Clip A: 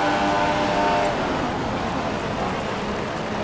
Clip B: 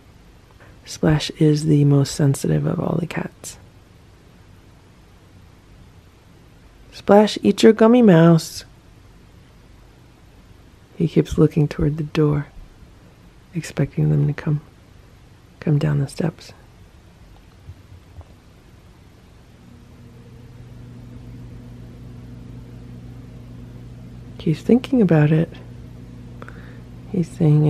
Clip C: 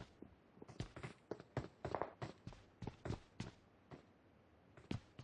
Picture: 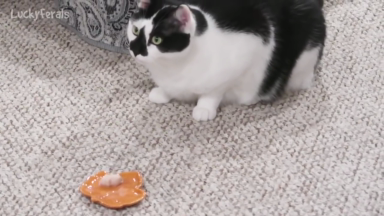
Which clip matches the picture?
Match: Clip B